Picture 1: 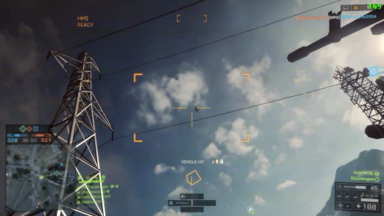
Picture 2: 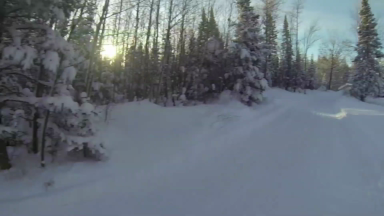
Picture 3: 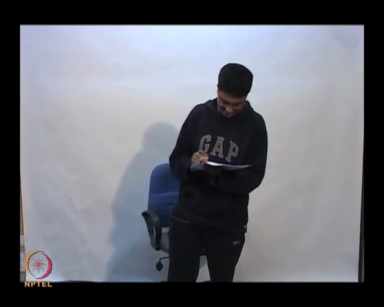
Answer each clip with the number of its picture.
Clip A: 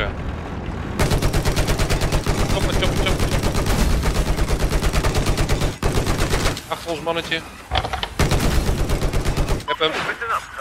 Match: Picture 1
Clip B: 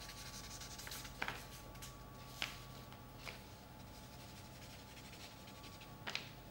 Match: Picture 3